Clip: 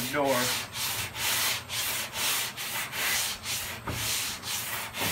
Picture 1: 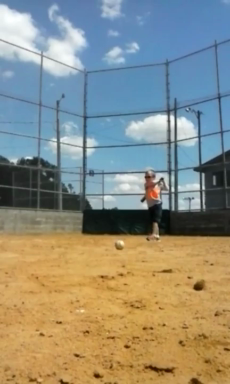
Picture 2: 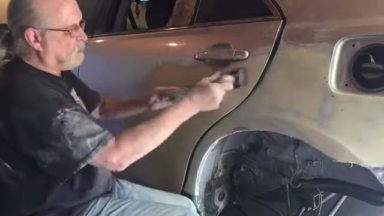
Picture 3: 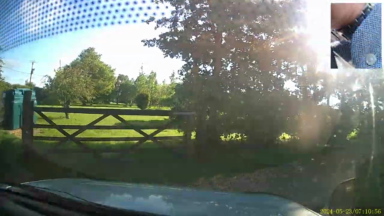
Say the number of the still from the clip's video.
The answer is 2